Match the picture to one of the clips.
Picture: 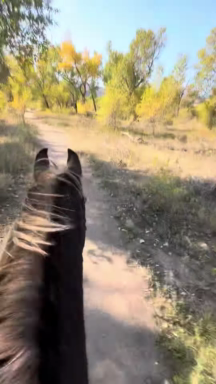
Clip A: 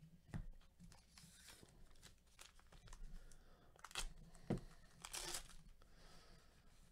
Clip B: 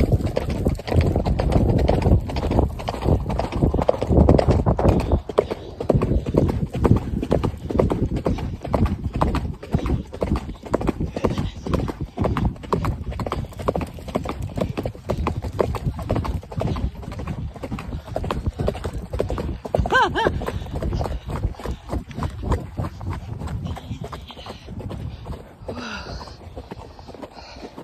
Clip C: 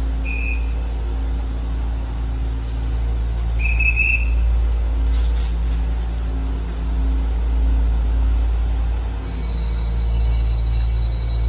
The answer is B